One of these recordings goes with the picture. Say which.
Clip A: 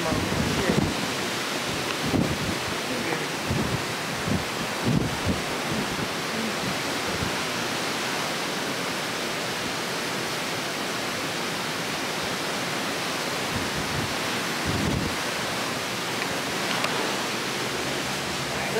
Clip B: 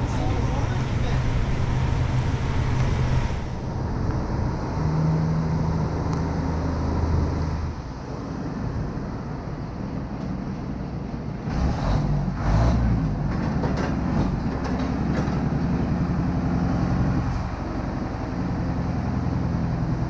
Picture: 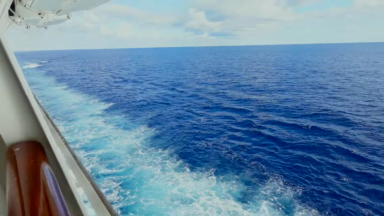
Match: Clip A